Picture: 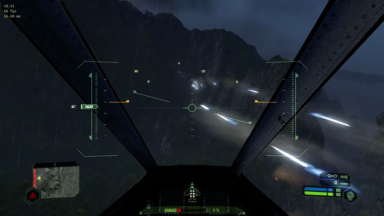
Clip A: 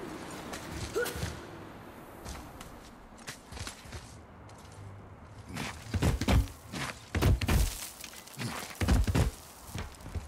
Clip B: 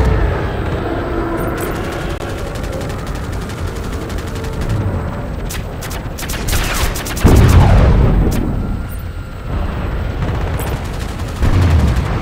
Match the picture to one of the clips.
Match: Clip B